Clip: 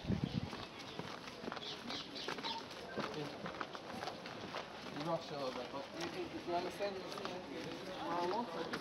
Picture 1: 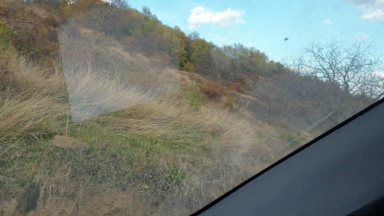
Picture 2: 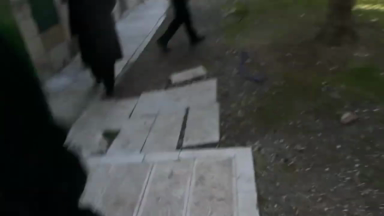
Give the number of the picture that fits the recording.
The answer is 2